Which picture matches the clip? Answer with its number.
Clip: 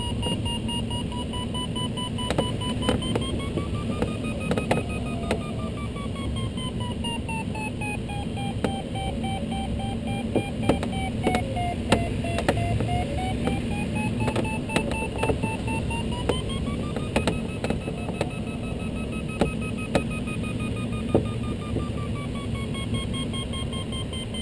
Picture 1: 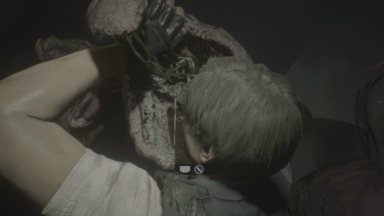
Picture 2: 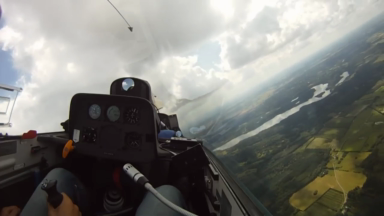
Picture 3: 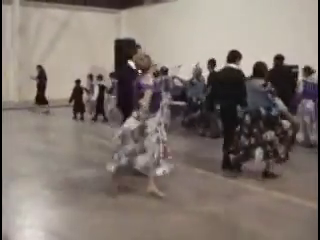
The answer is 2